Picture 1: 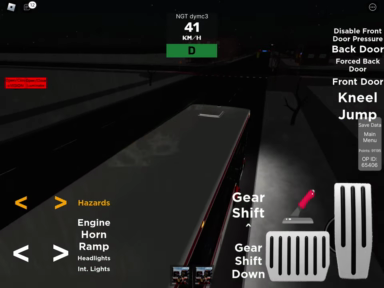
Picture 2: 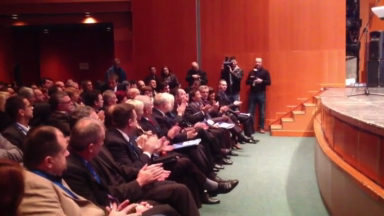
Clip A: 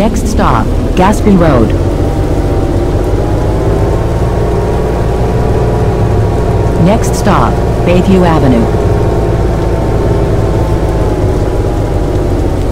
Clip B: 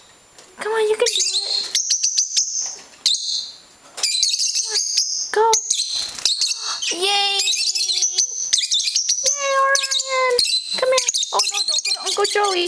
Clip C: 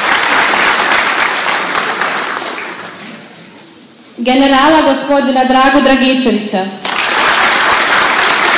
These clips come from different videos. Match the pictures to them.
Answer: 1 A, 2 C